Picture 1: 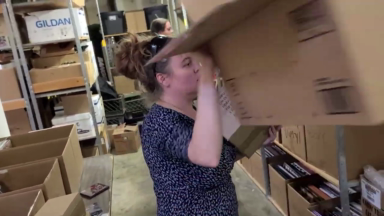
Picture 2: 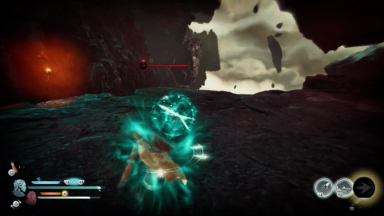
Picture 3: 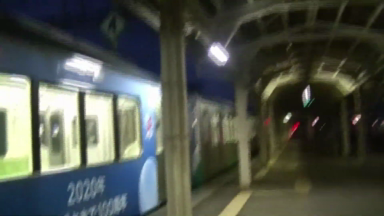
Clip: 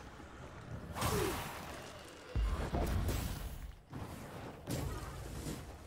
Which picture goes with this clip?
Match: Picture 2